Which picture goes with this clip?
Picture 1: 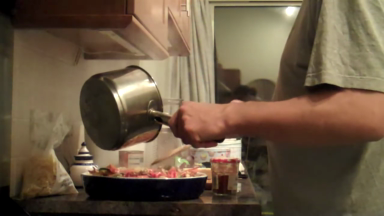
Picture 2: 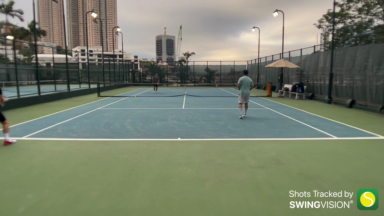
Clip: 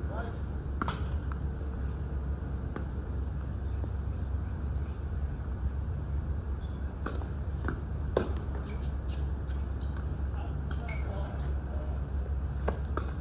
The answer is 2